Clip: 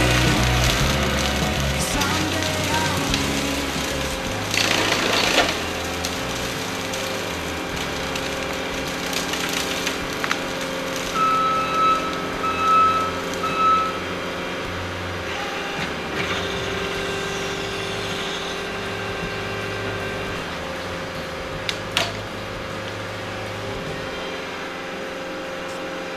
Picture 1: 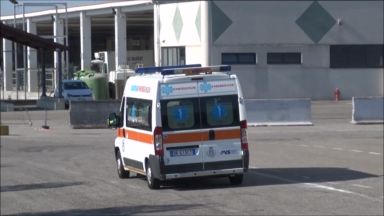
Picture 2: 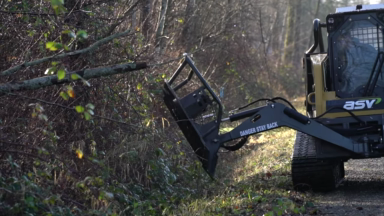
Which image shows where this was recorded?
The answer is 2